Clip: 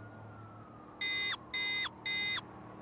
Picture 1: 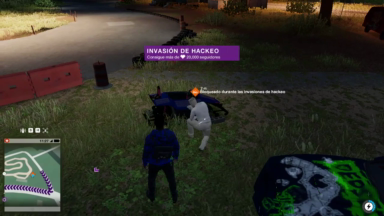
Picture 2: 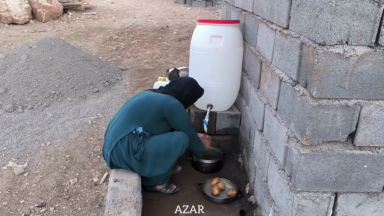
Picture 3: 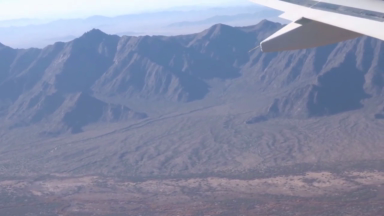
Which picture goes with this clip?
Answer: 1